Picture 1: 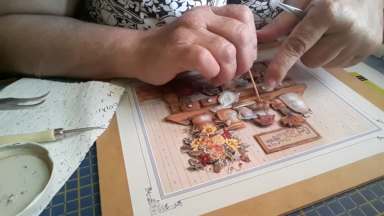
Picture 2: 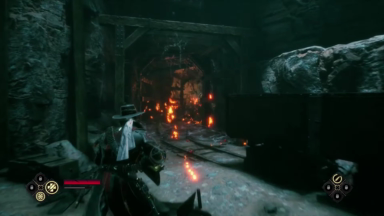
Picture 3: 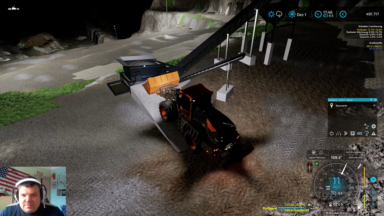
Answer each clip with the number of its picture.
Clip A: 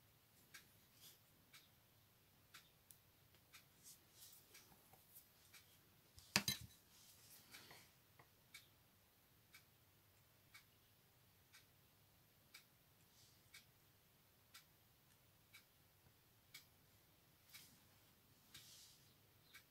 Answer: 1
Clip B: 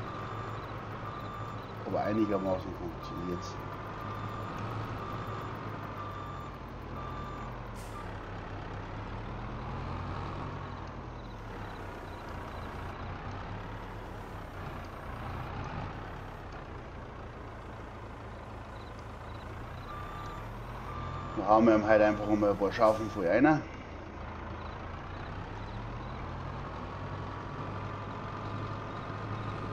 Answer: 3